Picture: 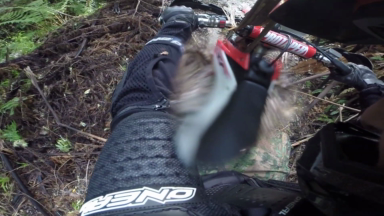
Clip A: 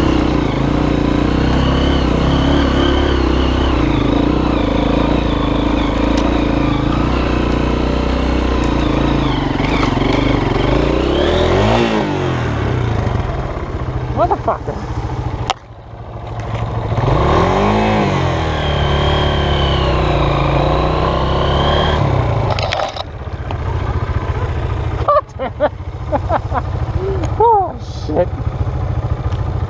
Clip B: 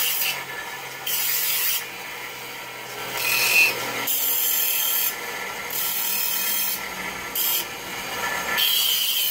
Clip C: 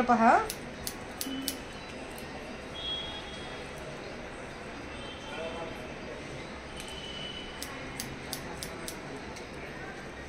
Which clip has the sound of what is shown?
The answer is A